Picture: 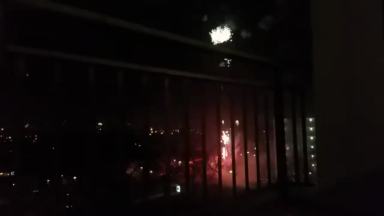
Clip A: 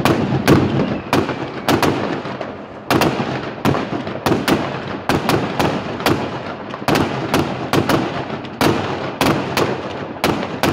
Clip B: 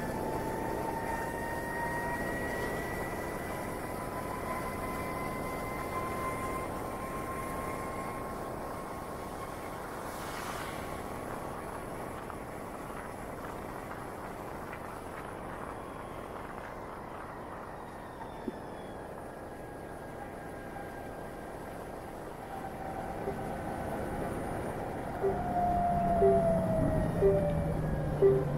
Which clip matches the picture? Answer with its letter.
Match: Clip A